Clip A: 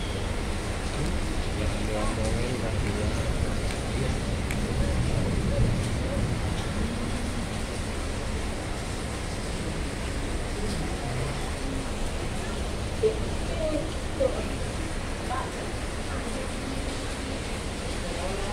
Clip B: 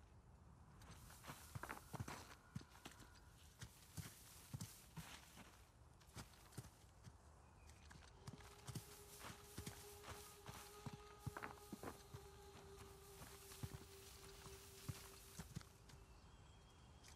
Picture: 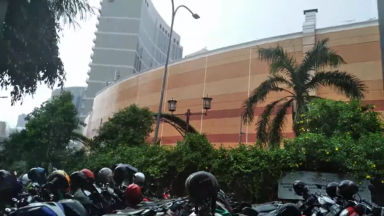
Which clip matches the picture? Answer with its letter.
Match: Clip A